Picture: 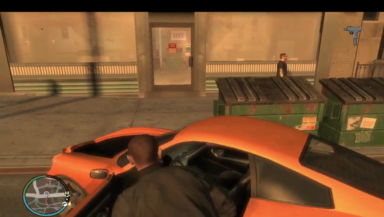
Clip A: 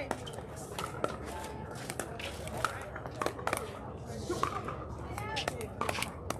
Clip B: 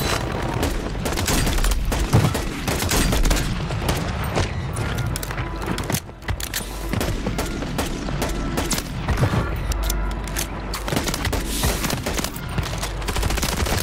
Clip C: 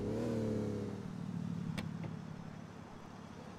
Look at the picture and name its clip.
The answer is C